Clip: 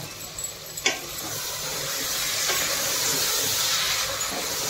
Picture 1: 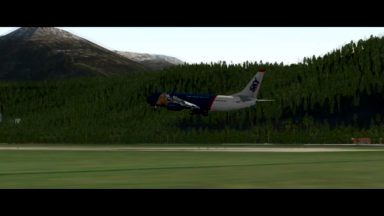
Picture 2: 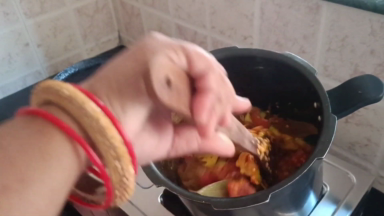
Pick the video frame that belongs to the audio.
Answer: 2